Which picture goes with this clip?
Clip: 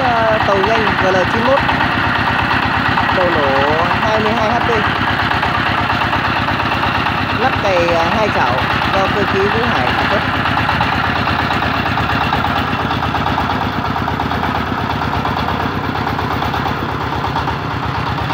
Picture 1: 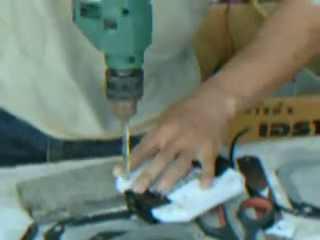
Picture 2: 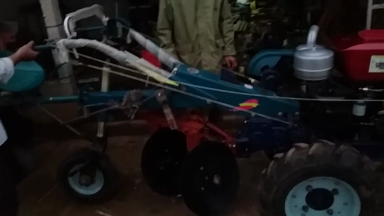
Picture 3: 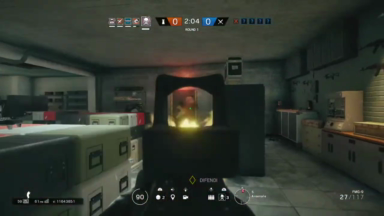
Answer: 2